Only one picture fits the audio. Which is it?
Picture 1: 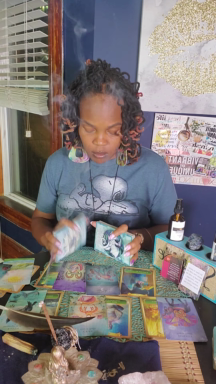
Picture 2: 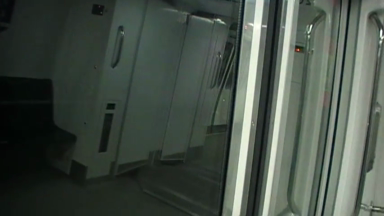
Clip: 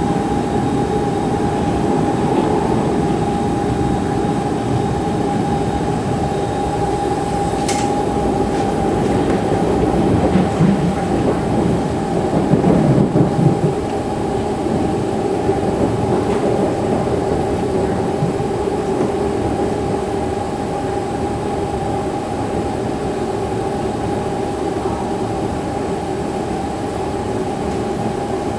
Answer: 2